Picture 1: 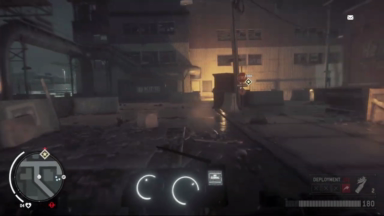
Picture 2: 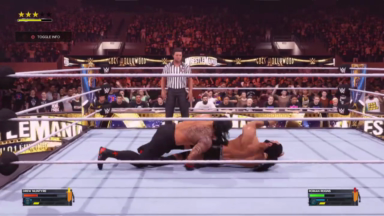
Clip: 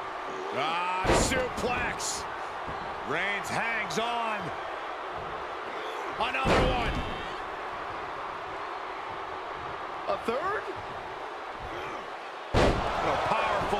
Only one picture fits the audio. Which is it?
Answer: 2